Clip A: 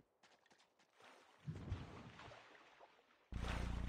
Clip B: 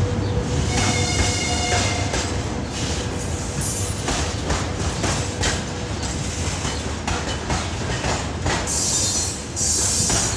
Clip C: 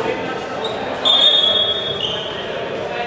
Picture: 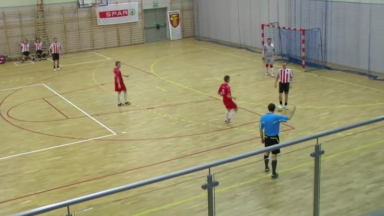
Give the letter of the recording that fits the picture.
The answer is C